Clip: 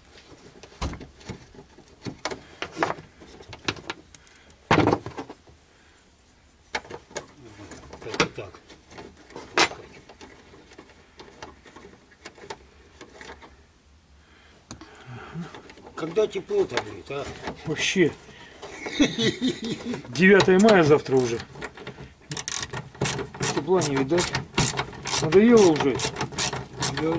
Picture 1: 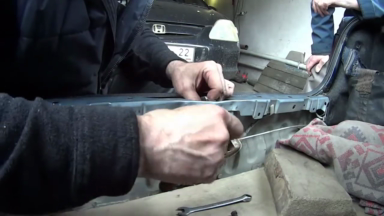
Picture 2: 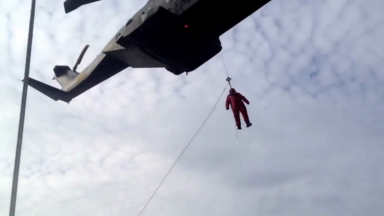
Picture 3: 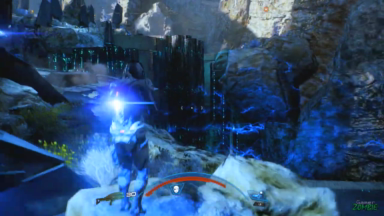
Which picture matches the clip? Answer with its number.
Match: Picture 1